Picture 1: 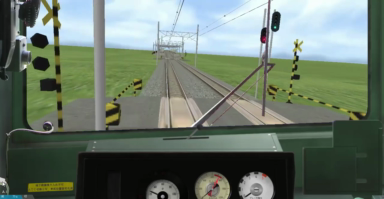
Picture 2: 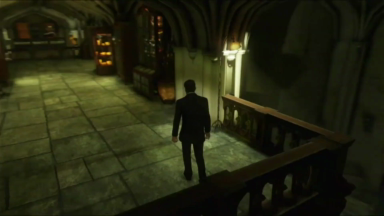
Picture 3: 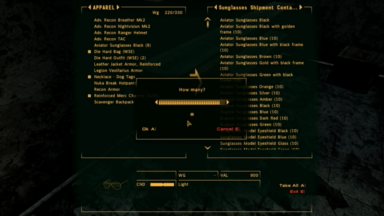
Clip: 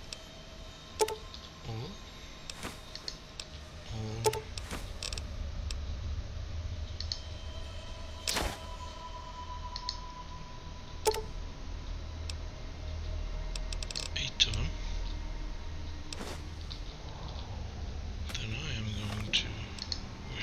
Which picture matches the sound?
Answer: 3